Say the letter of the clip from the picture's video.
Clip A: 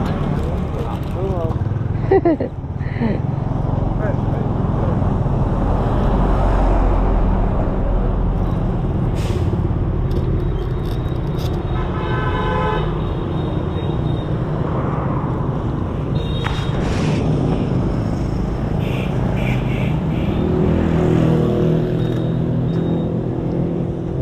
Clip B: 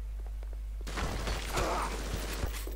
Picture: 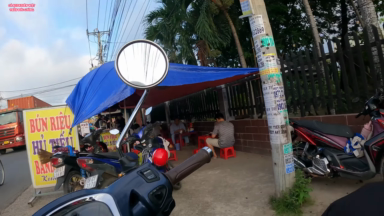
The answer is A